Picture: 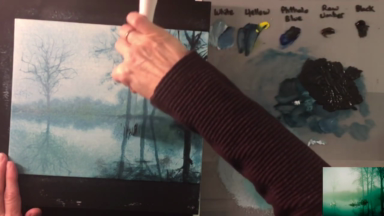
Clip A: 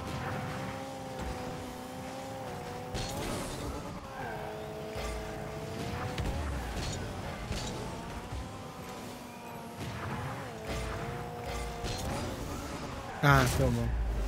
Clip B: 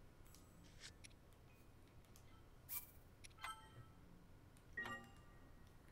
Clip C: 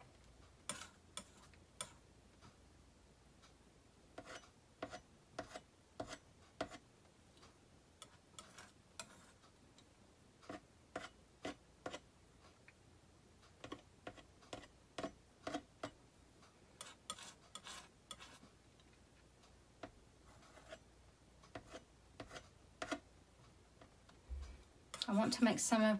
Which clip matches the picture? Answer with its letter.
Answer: C